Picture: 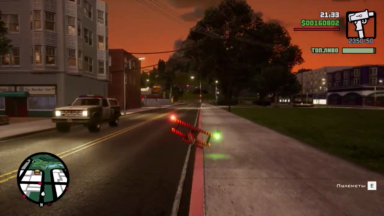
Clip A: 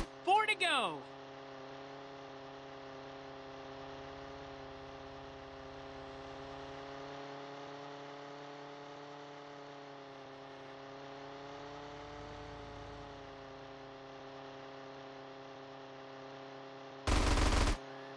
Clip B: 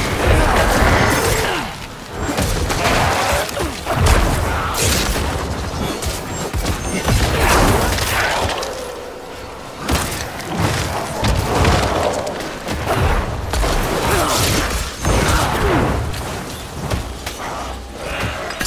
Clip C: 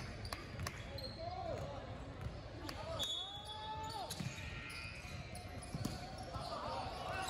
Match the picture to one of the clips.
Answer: A